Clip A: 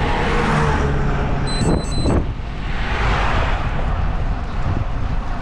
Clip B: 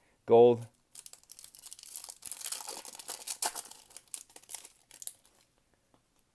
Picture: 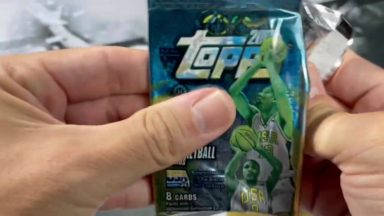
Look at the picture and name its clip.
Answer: B